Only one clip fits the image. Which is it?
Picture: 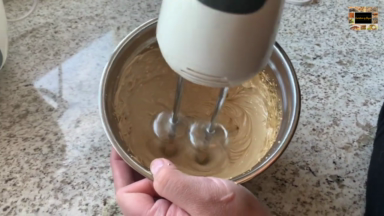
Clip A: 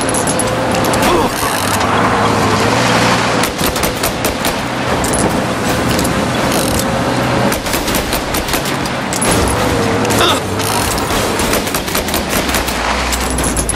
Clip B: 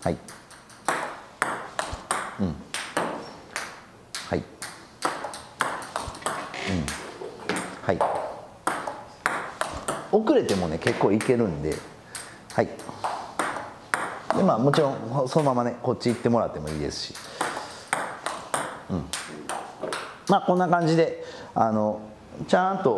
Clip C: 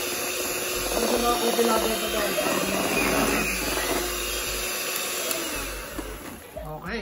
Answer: C